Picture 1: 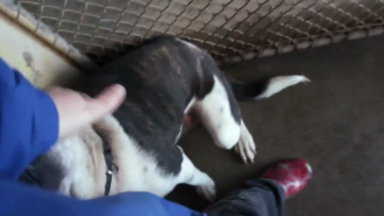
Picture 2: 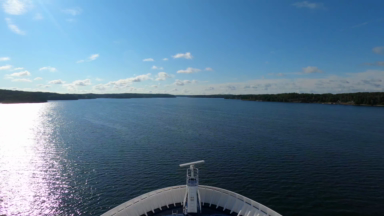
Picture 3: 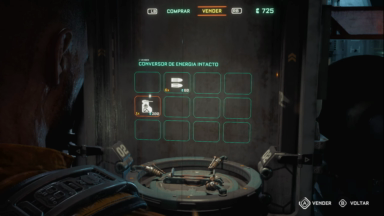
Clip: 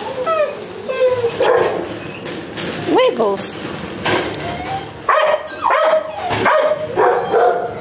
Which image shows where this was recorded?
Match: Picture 1